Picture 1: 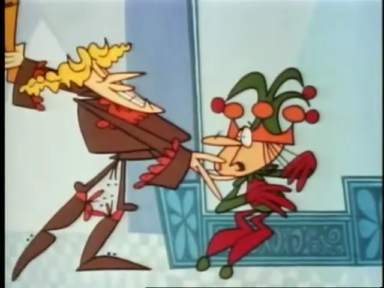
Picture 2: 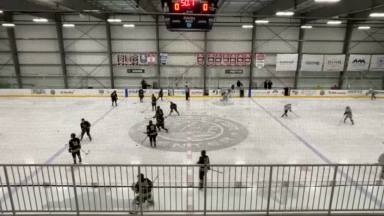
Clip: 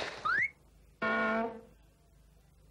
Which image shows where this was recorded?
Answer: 1